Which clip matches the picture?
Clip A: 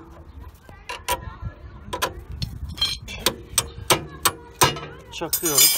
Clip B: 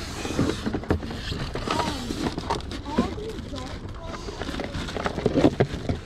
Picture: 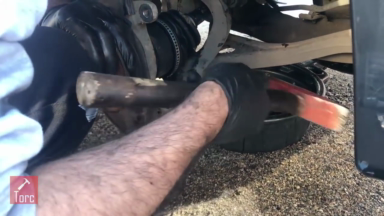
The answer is A